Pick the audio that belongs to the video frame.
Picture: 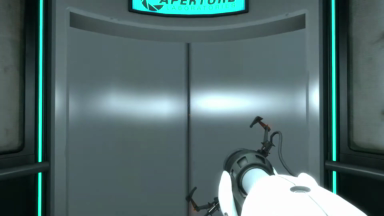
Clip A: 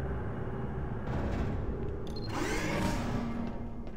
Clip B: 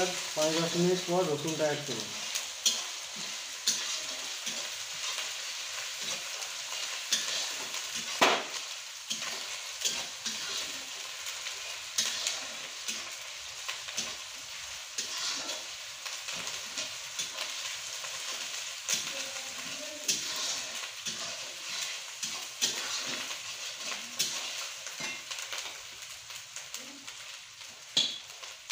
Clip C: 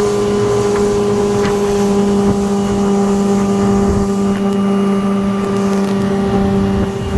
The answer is A